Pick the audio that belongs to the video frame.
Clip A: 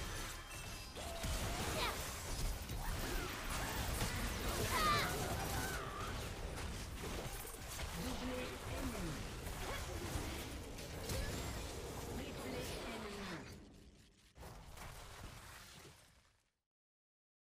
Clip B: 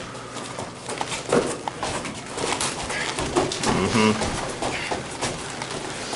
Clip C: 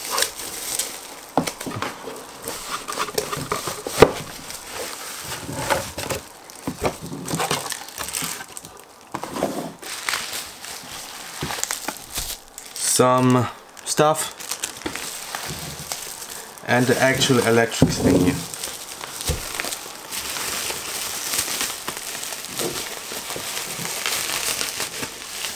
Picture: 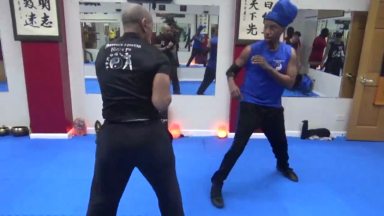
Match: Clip B